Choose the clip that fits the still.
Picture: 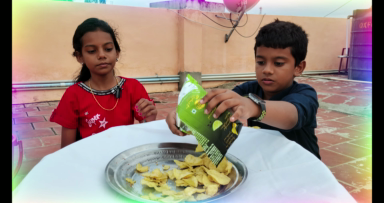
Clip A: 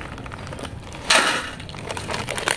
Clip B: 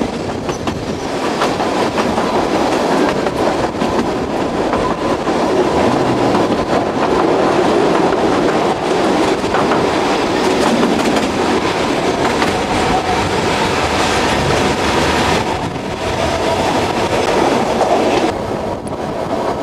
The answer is A